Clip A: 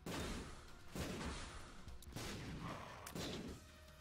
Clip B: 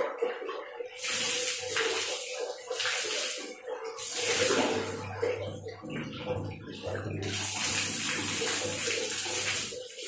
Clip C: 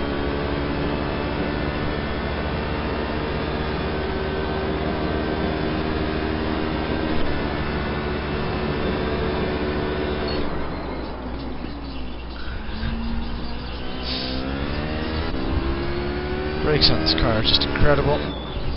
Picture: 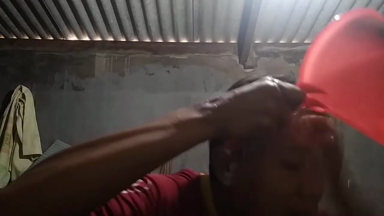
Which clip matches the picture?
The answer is B